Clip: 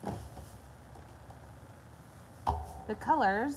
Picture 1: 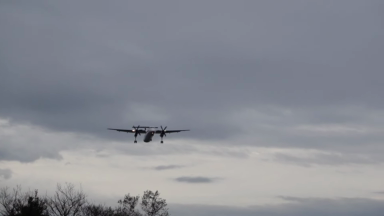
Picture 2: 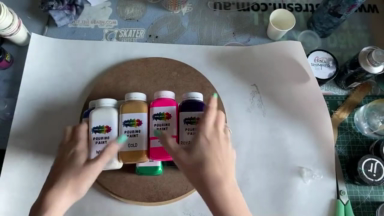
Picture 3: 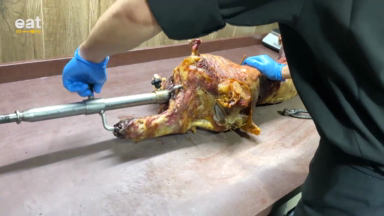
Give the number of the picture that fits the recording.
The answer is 2